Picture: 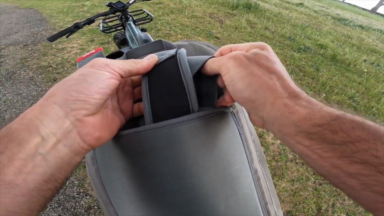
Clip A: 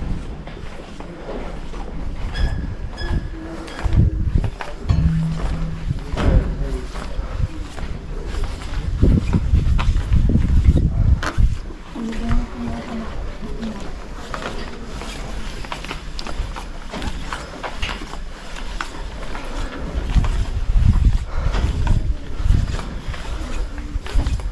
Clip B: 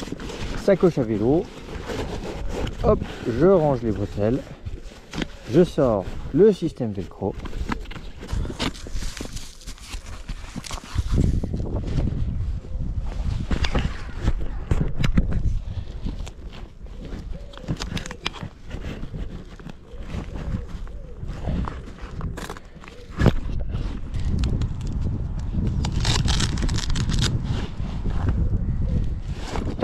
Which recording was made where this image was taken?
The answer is B